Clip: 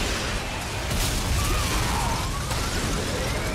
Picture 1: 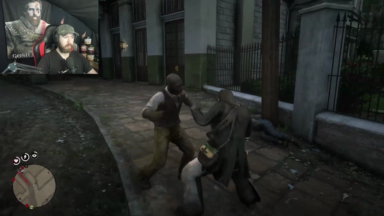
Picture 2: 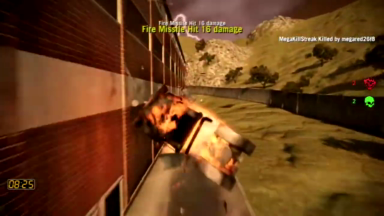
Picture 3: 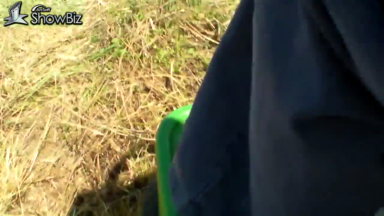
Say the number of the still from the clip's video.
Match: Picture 2